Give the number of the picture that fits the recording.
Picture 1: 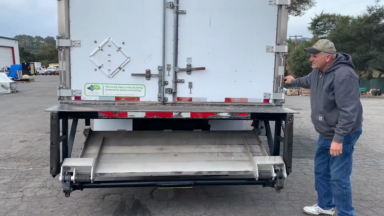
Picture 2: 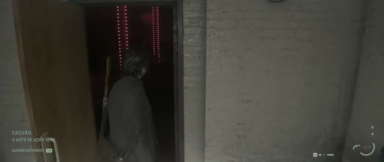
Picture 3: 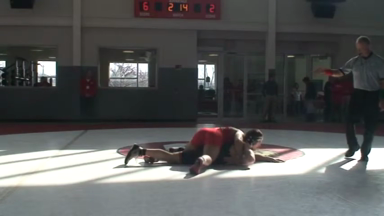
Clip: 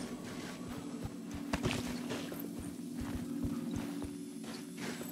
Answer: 2